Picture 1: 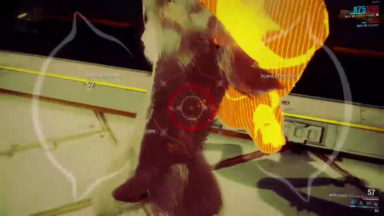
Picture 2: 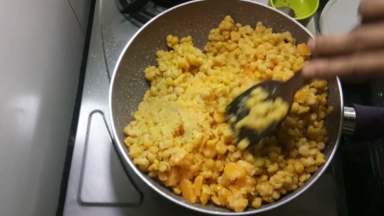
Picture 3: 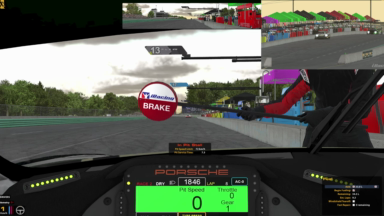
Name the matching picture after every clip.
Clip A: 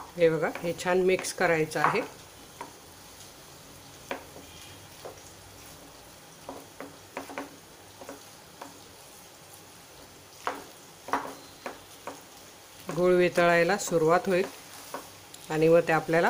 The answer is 2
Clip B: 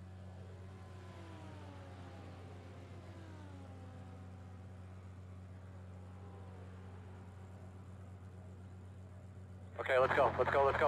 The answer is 3